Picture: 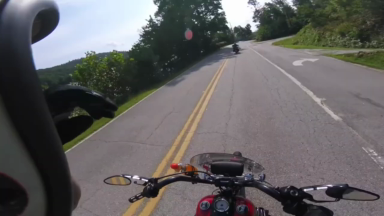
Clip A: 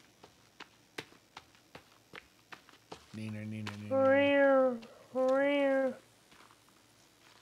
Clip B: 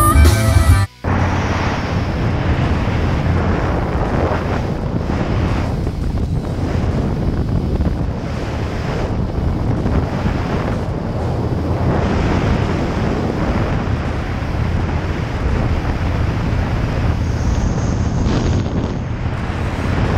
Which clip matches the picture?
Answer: B